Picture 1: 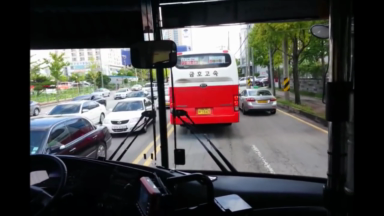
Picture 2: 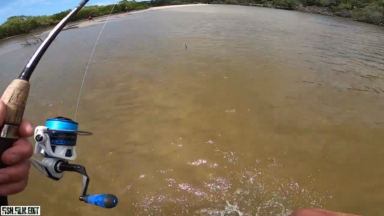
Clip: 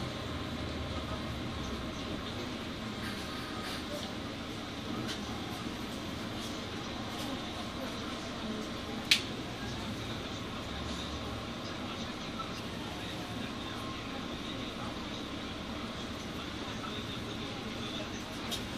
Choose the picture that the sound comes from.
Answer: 1